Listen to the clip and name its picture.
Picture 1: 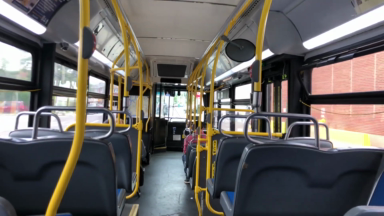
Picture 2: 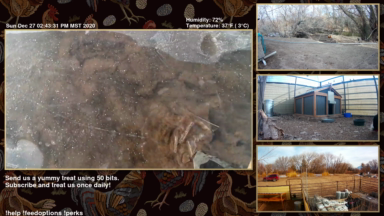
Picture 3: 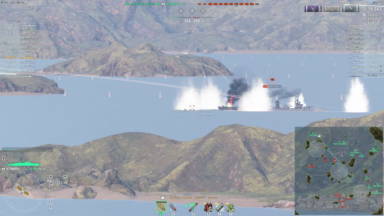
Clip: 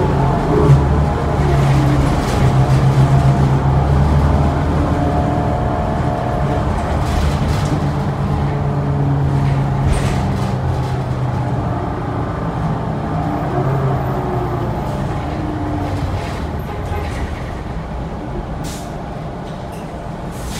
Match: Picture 1